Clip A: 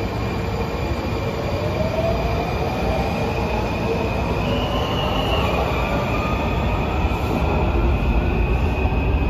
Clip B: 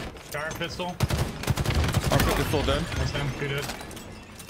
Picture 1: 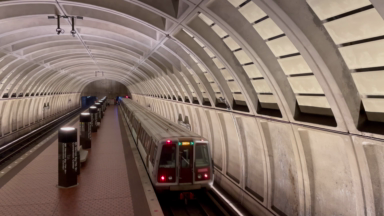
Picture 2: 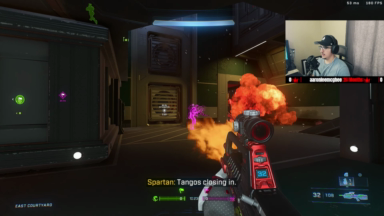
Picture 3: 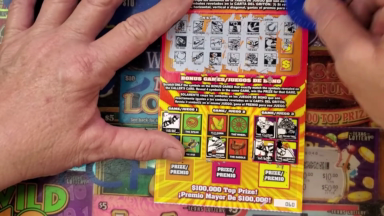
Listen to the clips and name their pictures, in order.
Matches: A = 1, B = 2